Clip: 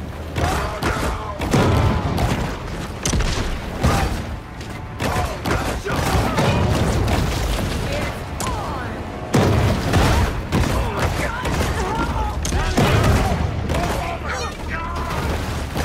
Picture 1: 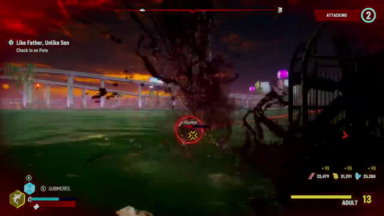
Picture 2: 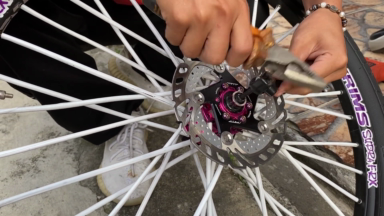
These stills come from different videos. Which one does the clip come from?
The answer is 1